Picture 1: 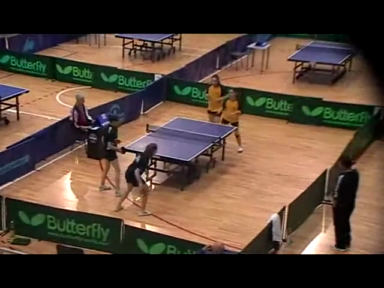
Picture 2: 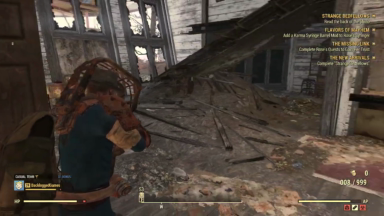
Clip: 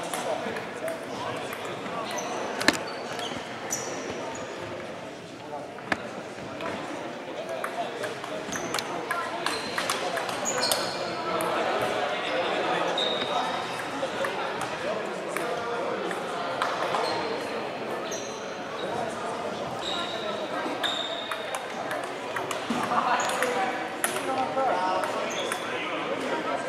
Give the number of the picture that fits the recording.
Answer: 1